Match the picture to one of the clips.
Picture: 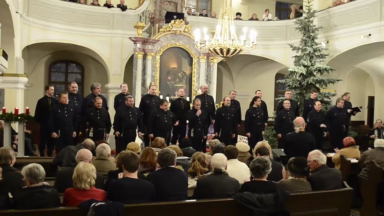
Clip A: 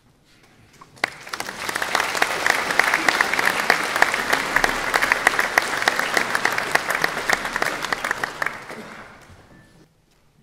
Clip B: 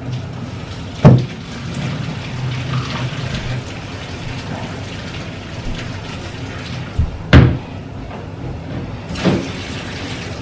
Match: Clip A